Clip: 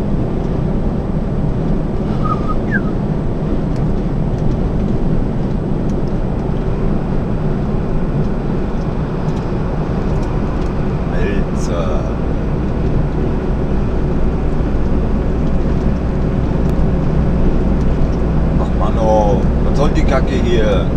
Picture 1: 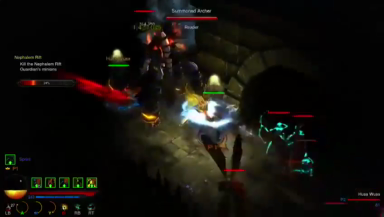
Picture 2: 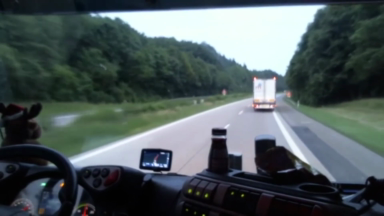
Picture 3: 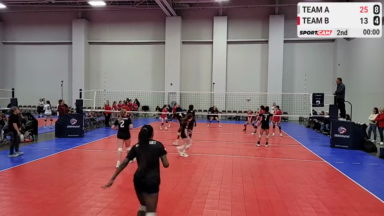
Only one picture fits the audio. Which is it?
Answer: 2